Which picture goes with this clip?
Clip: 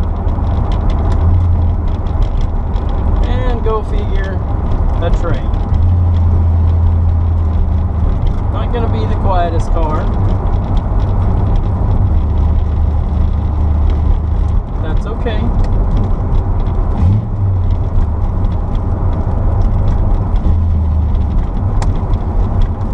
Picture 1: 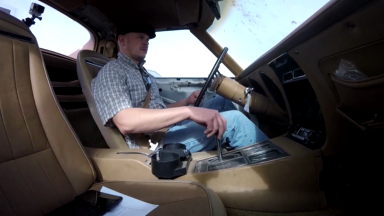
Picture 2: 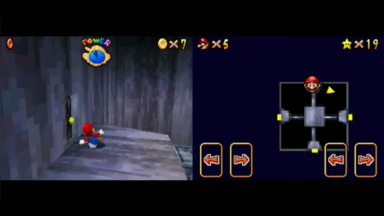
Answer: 1